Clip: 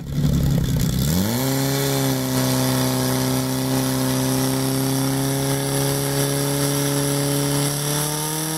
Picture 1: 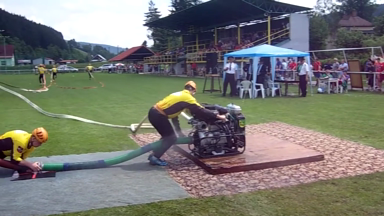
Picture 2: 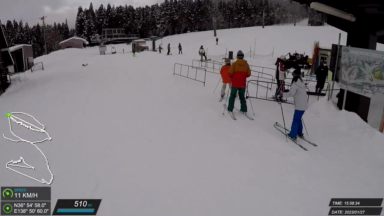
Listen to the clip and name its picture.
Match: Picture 1